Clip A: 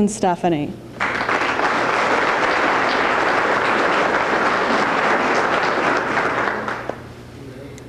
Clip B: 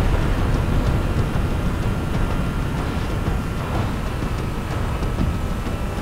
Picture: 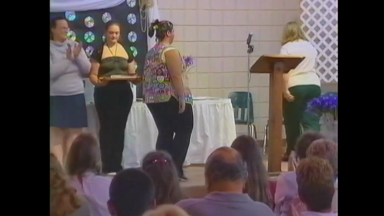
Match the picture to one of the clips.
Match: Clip A